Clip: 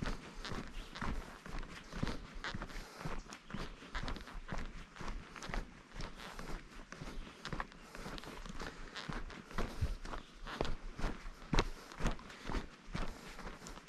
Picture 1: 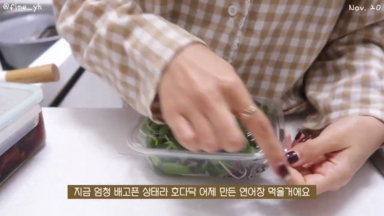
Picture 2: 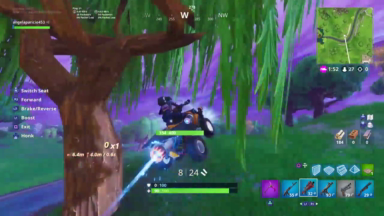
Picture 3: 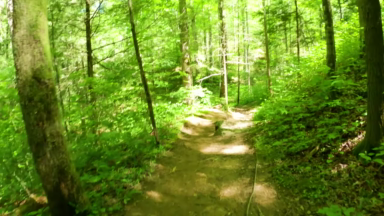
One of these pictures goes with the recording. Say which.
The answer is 3